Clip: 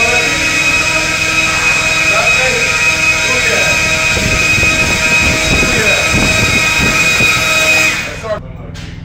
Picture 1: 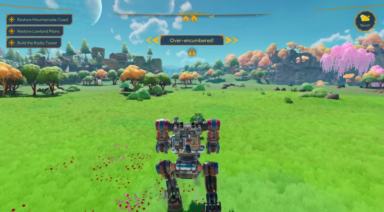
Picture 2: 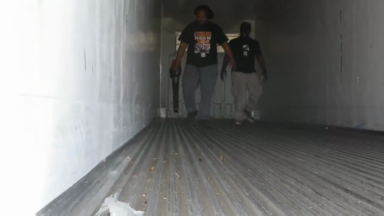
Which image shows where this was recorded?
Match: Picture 2